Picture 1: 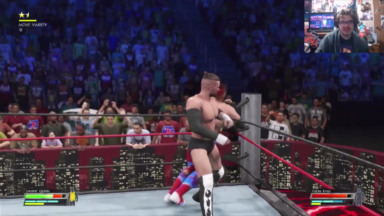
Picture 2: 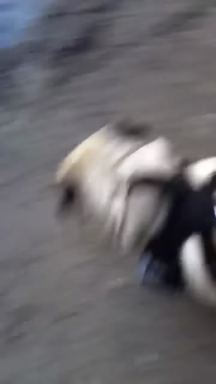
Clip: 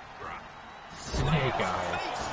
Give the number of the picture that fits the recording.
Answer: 1